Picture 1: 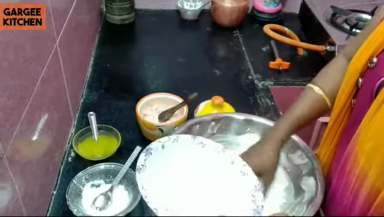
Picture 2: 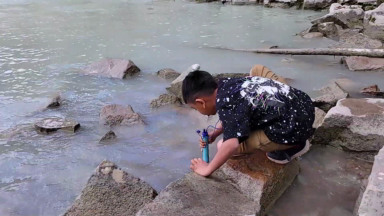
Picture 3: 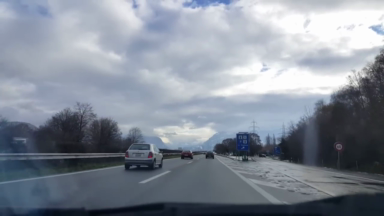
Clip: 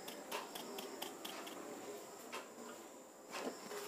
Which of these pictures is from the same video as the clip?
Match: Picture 1